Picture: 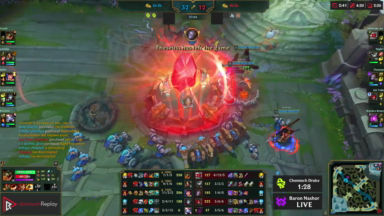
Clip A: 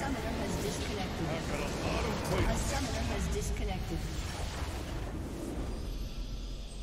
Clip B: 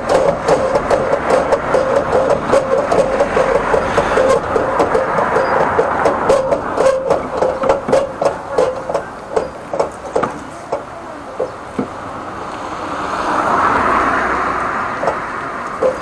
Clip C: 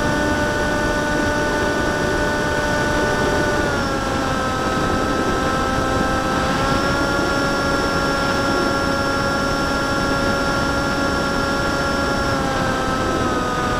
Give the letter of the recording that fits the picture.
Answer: A